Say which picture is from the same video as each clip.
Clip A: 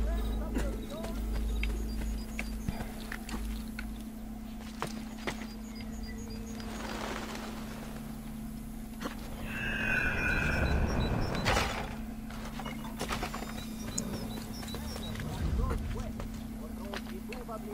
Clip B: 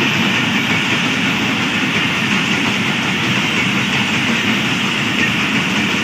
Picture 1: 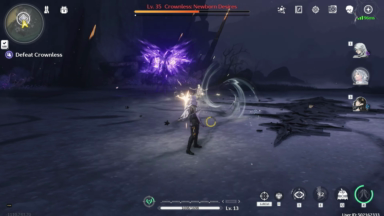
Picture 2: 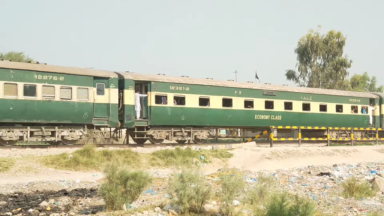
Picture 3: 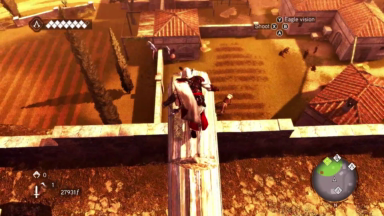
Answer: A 3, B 2